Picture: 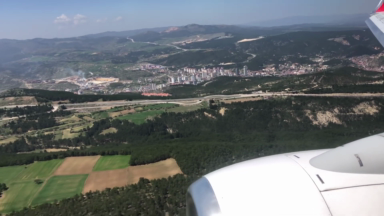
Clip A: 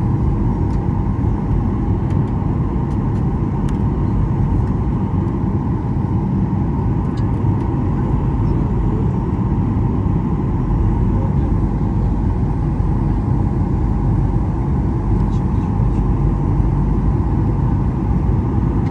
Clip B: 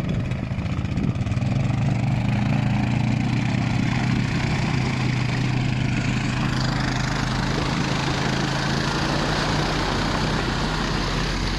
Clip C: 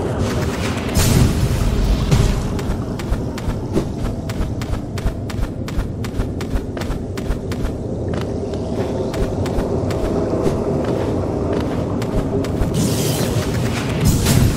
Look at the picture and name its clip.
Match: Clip A